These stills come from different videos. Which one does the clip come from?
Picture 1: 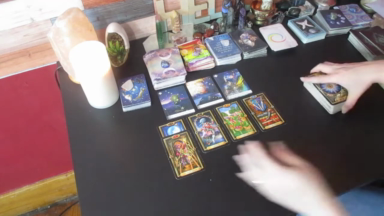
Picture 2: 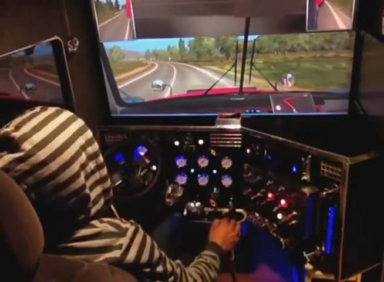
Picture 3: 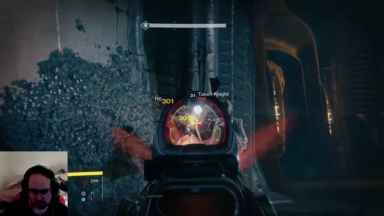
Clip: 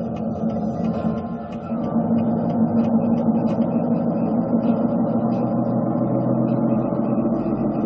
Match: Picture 2